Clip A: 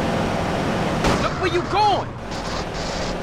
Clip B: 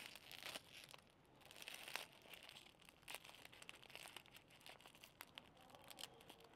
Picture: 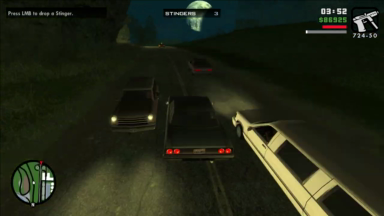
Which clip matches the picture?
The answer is A